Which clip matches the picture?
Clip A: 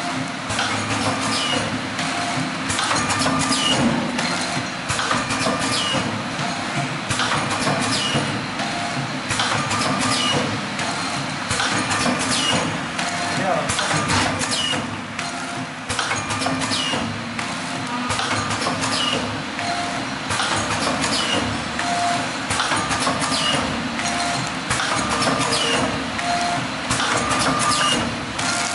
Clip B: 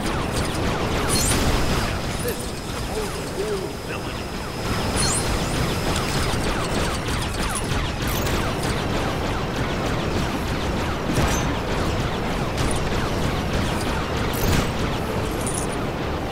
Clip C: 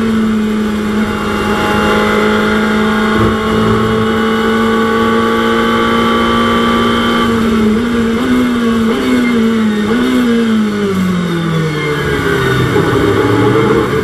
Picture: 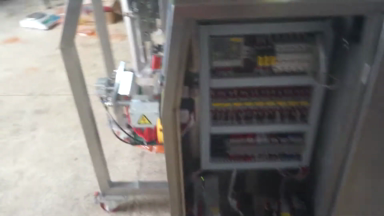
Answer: A